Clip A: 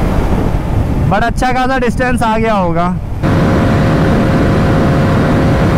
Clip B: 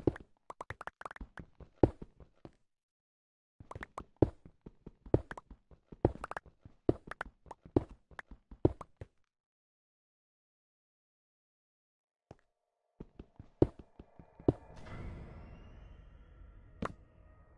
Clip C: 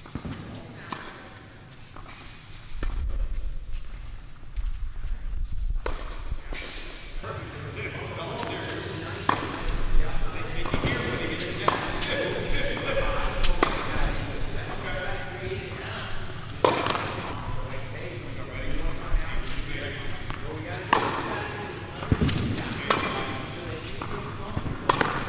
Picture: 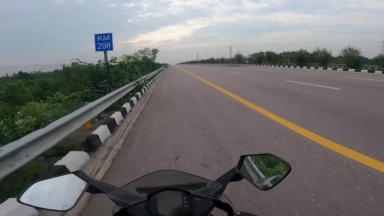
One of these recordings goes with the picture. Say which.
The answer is A